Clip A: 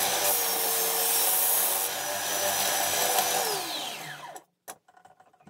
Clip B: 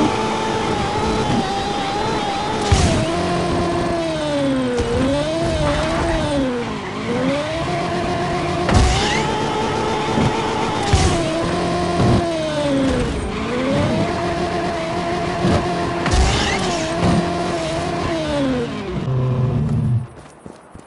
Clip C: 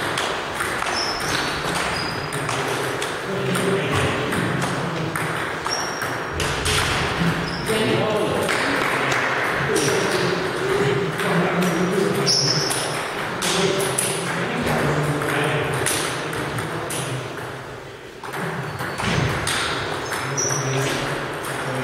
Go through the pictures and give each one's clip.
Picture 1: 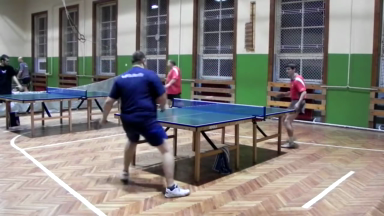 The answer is C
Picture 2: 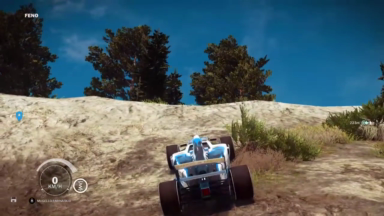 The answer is B